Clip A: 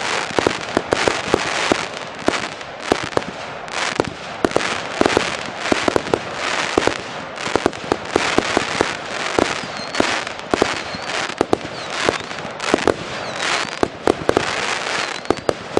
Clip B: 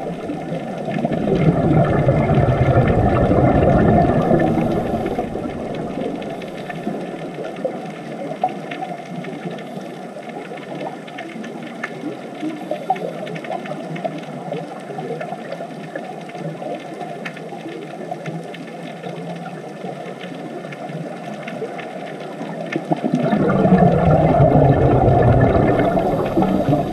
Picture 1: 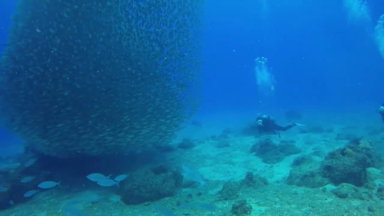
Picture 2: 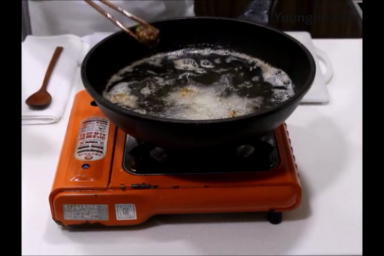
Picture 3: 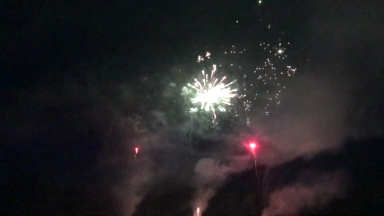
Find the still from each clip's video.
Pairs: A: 3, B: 1